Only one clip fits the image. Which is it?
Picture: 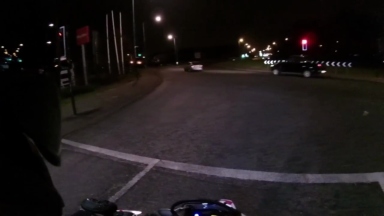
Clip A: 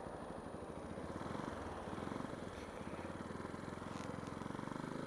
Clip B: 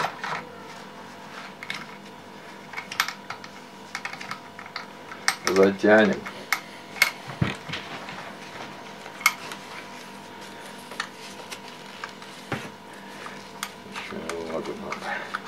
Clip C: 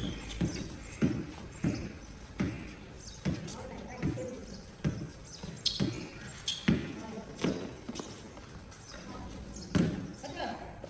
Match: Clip A